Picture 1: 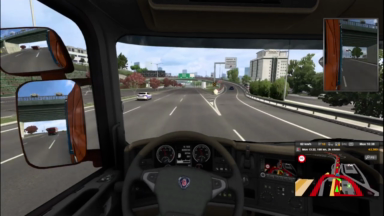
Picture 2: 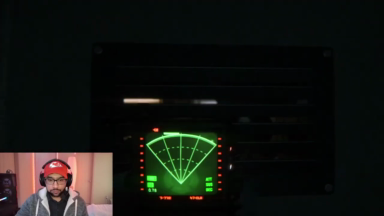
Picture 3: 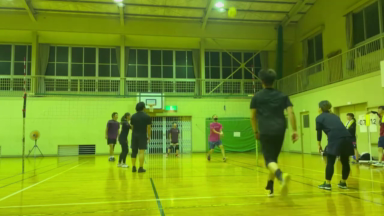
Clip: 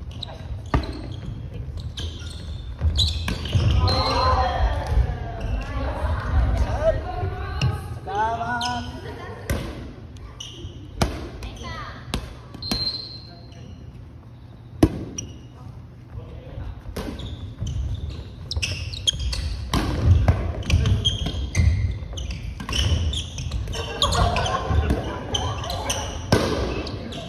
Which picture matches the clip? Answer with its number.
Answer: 3